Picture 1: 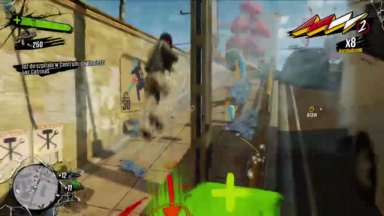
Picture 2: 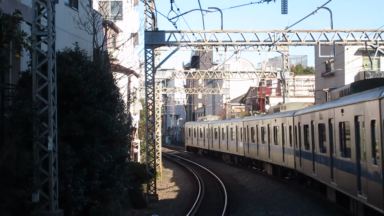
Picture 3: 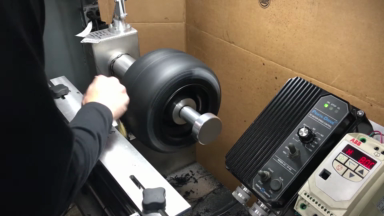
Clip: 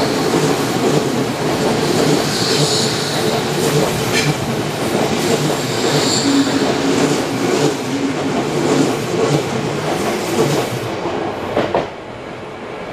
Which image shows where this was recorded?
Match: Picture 2